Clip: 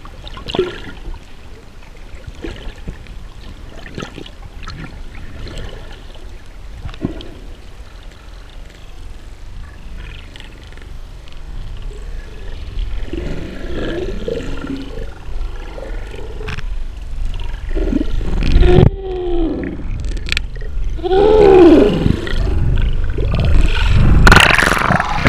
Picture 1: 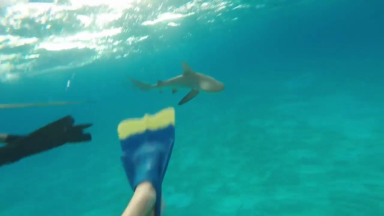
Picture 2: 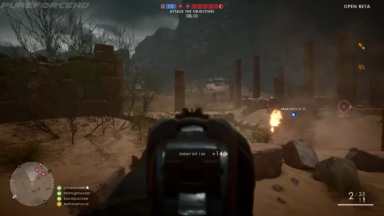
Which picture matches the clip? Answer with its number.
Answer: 1